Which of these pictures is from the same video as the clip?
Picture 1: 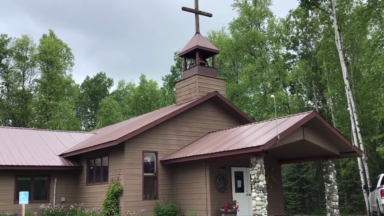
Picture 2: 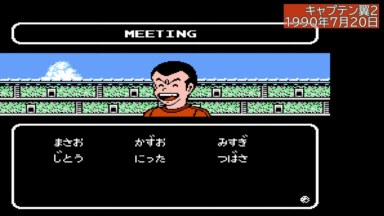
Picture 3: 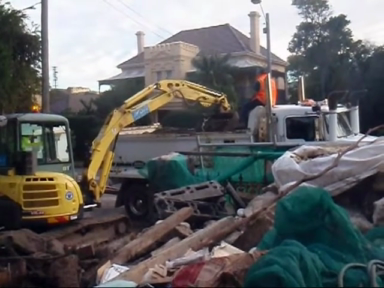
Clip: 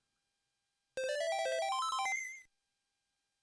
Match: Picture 2